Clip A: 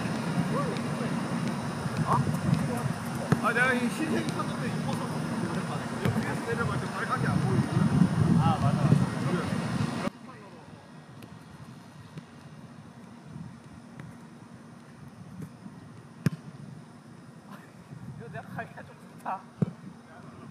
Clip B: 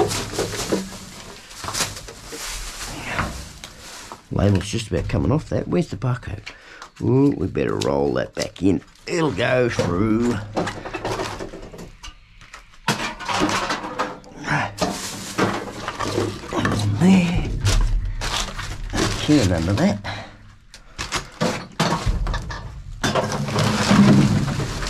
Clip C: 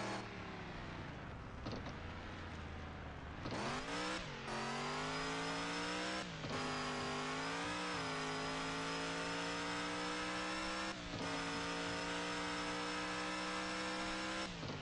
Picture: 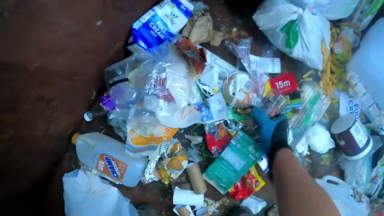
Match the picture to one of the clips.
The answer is B